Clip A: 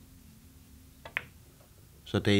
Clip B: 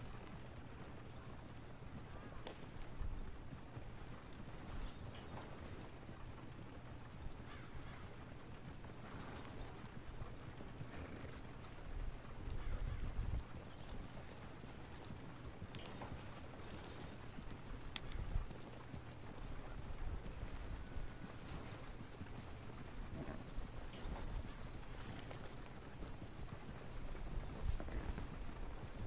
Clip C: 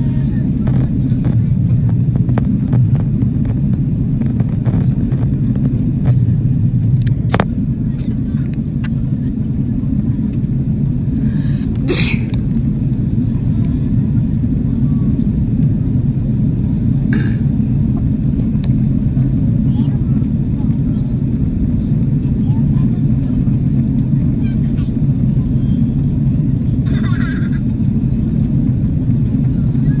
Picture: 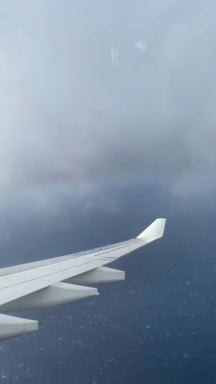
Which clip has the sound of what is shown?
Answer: C